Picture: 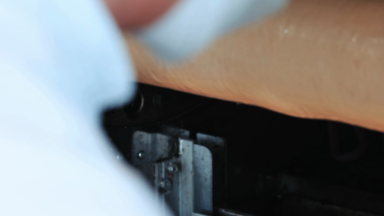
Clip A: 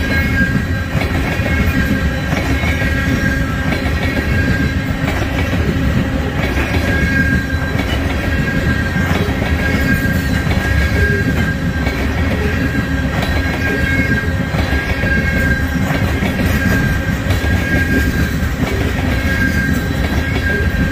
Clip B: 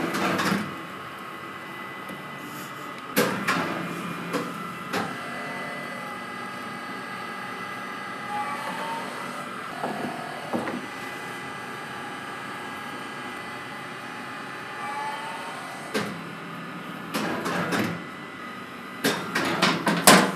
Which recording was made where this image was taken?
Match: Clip B